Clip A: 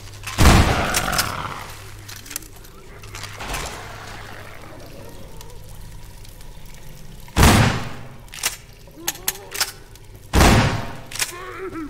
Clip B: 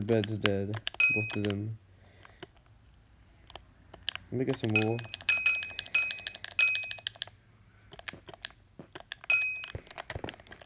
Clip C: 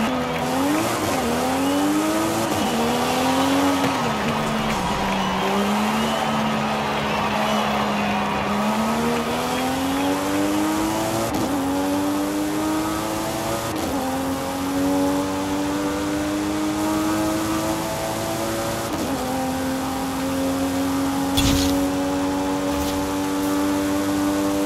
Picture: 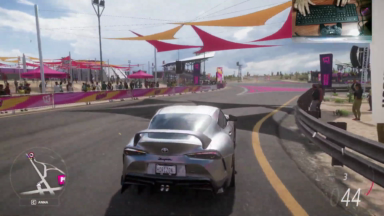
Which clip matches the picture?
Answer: C